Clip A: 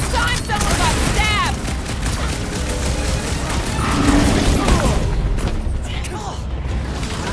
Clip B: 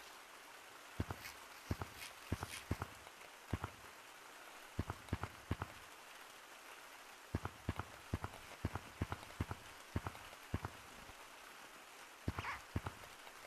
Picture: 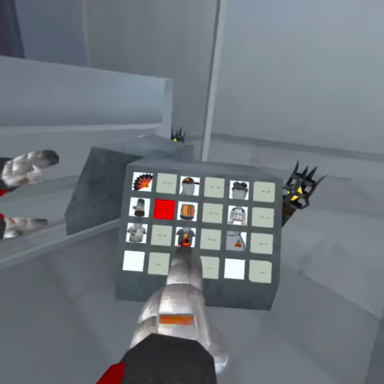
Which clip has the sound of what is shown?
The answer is B